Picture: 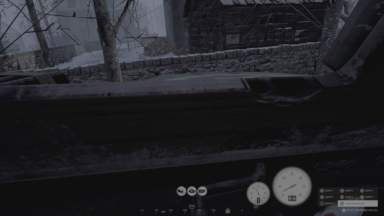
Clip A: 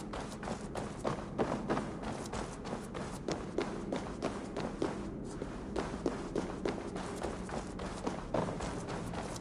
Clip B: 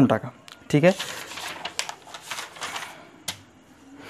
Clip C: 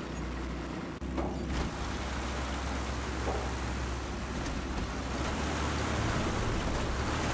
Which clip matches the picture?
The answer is C